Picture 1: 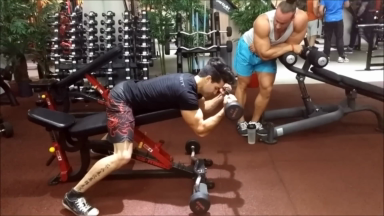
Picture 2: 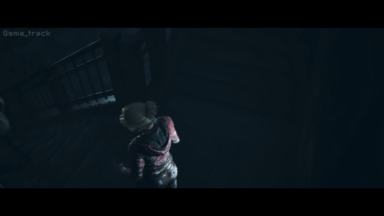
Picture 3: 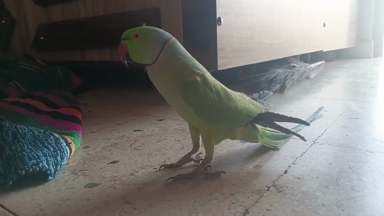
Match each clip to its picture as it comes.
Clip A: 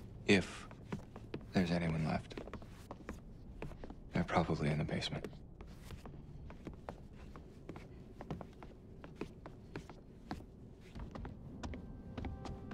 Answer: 2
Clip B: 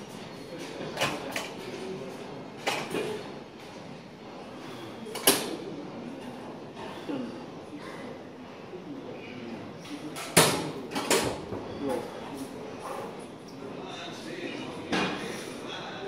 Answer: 1